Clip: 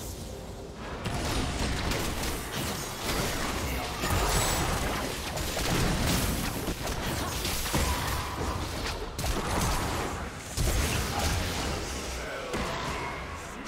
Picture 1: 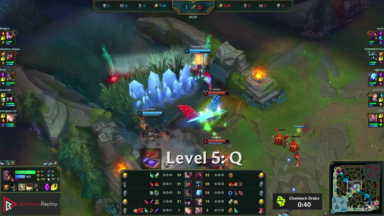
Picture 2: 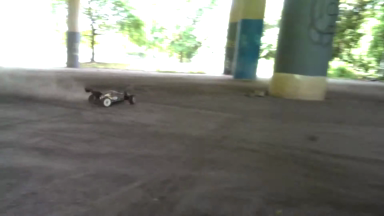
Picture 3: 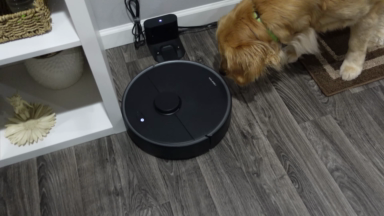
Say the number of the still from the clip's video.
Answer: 1